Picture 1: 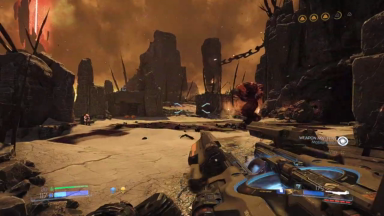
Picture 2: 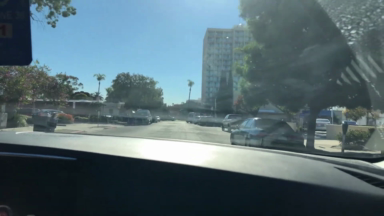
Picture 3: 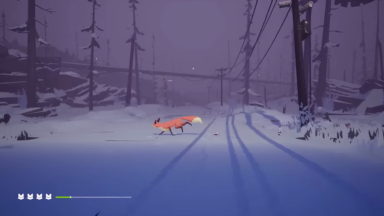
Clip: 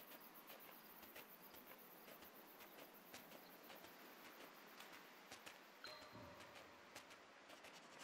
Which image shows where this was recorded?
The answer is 3